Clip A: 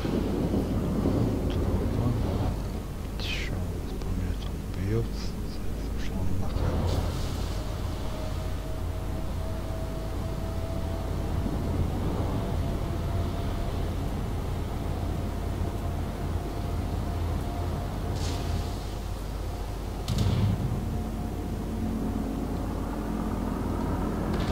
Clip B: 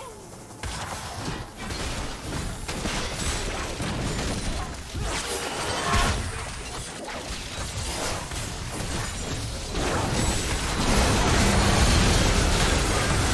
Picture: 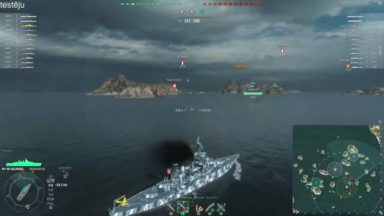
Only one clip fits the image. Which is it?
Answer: A